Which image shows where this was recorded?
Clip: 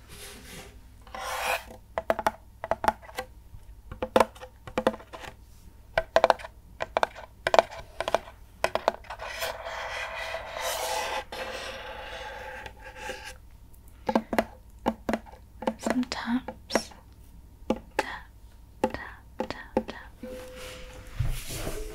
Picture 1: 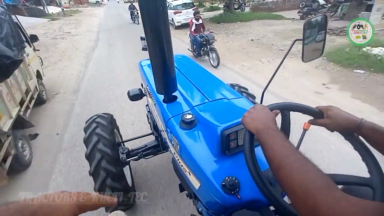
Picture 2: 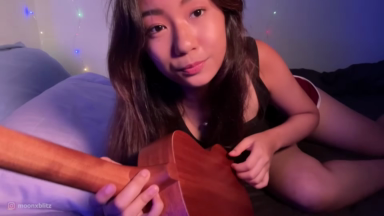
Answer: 2